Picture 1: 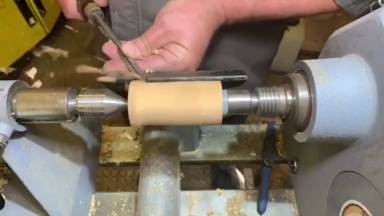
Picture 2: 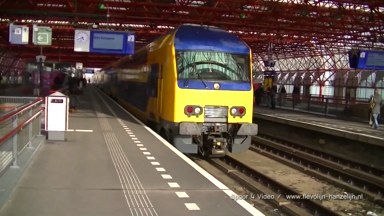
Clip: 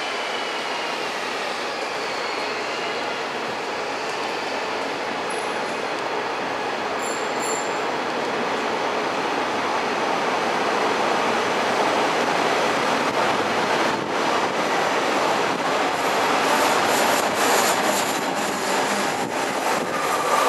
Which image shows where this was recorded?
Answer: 2